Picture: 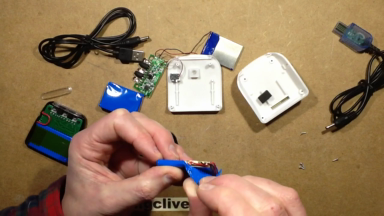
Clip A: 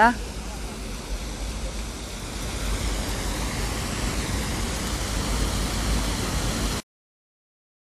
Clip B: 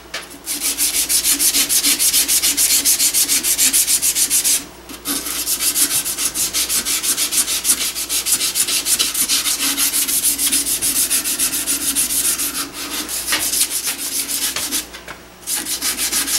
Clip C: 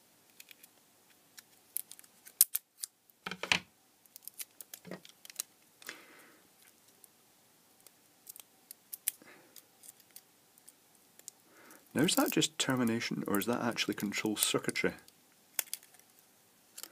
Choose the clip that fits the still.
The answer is C